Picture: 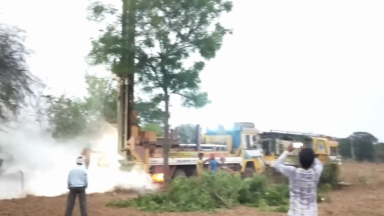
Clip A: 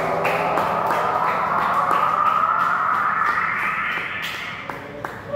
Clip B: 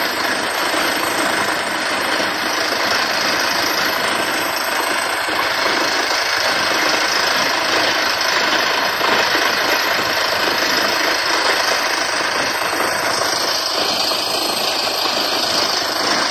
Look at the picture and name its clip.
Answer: B